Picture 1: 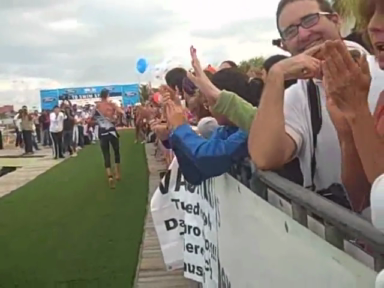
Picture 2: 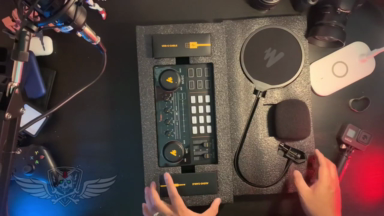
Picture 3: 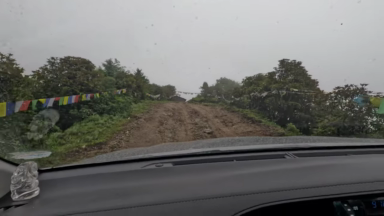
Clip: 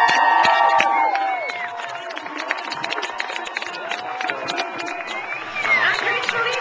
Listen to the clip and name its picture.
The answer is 1